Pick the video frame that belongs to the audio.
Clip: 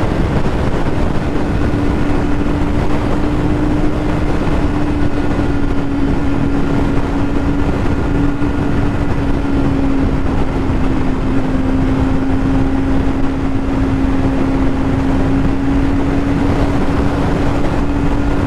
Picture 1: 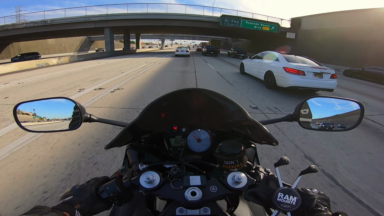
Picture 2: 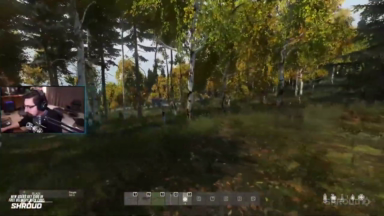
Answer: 1